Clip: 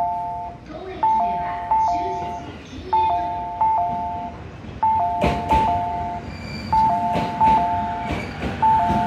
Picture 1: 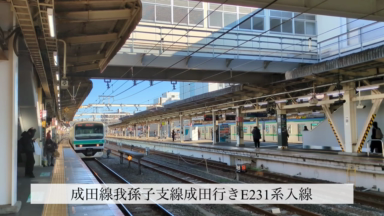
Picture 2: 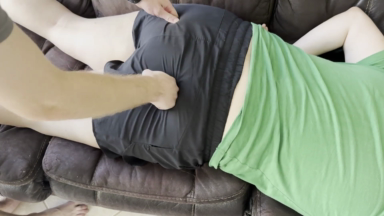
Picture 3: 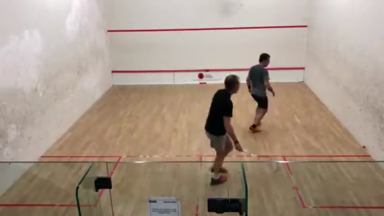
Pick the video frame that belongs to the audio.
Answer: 1